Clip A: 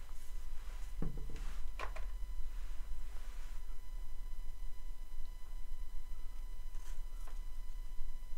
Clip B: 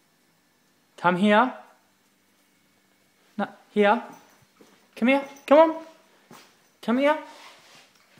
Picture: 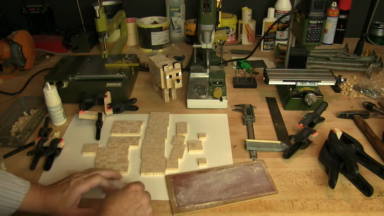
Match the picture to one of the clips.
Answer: A